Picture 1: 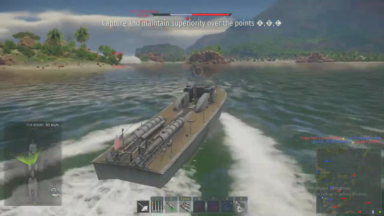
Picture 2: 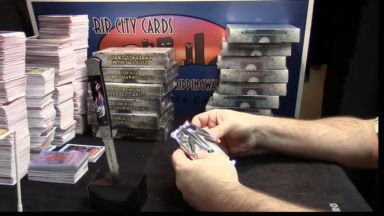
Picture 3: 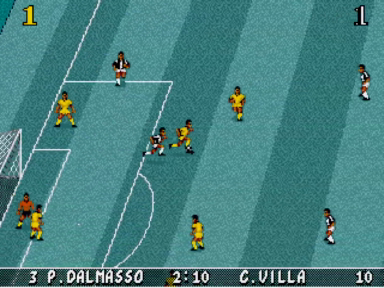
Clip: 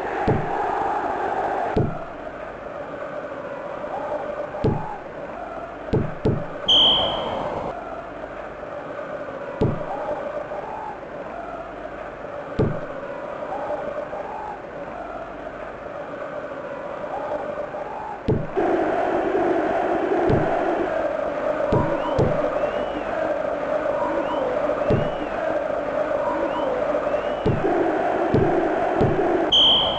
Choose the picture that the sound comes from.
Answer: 3